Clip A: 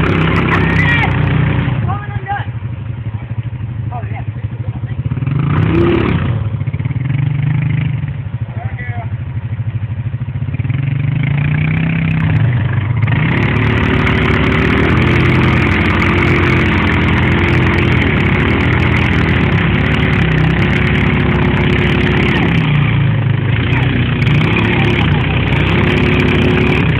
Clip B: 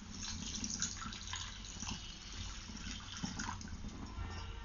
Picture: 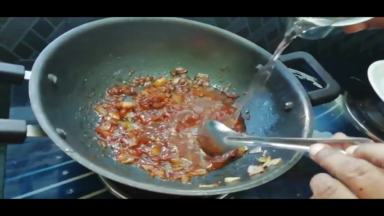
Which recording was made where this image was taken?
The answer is B